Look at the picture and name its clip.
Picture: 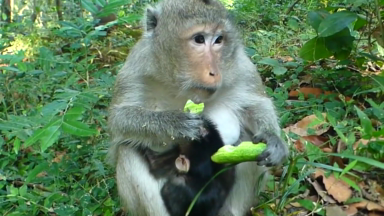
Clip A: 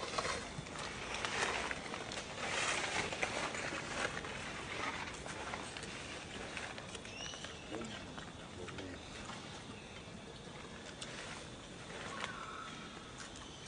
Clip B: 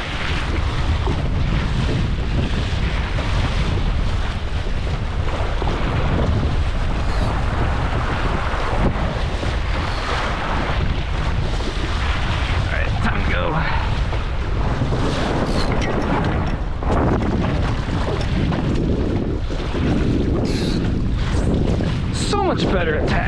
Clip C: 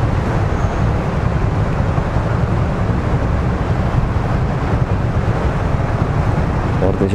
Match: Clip A